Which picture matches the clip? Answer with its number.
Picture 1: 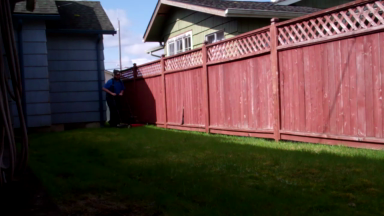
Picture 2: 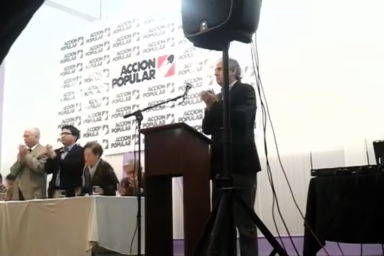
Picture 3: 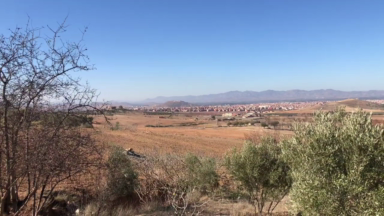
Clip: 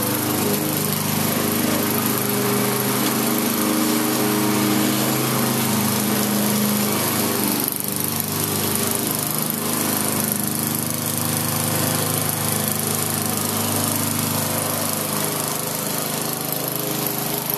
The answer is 1